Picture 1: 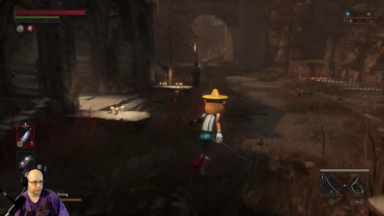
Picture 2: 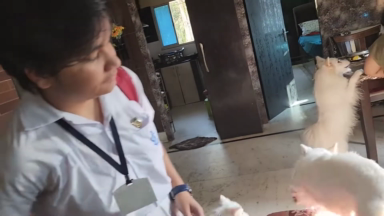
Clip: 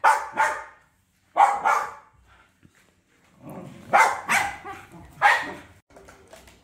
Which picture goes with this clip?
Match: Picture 2